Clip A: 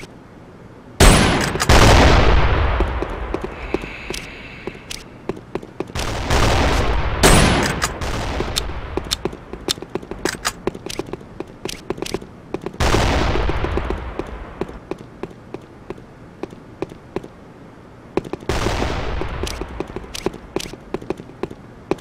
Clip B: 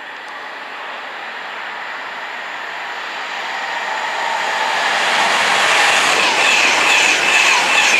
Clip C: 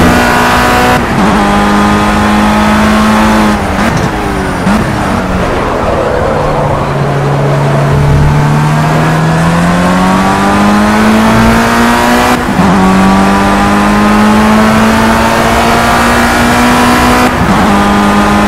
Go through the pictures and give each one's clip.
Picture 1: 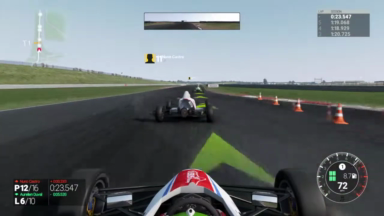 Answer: C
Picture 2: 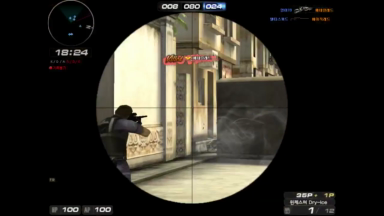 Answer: A